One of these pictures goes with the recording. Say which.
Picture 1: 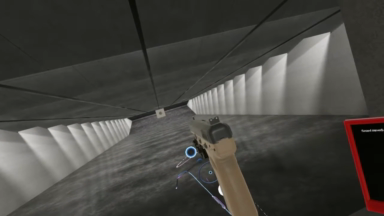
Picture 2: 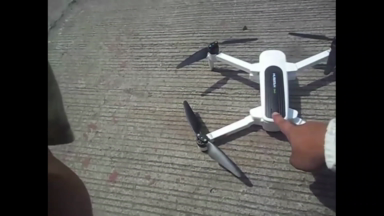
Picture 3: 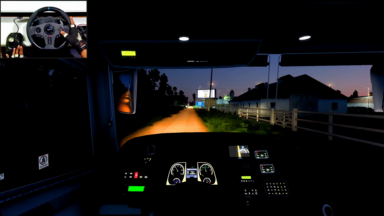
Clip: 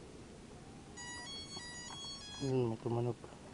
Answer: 2